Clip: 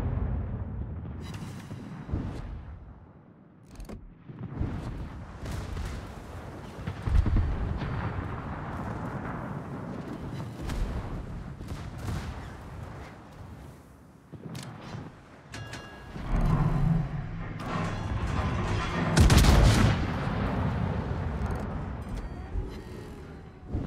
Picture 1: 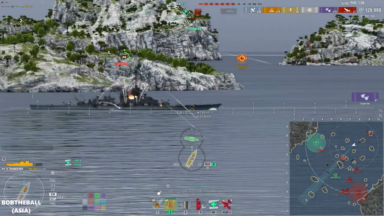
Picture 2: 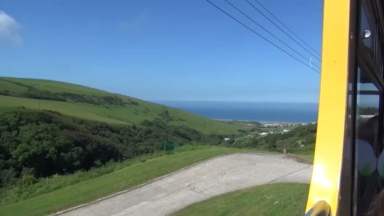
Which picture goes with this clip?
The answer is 1